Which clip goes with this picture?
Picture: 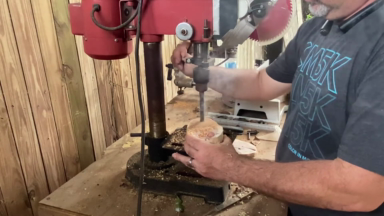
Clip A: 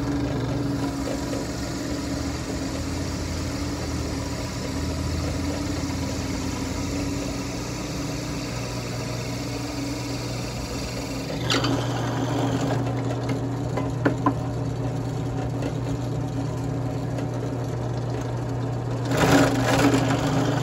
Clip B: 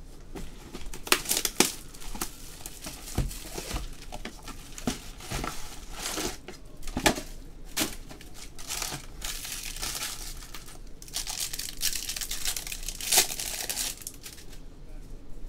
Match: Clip A